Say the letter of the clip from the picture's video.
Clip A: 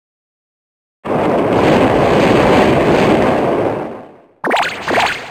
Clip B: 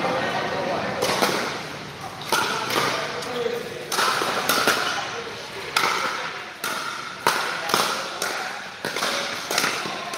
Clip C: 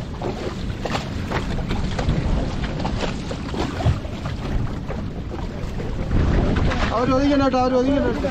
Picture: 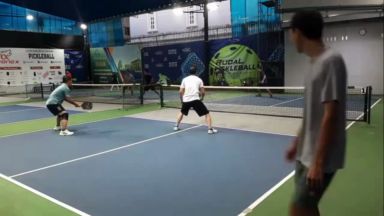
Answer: B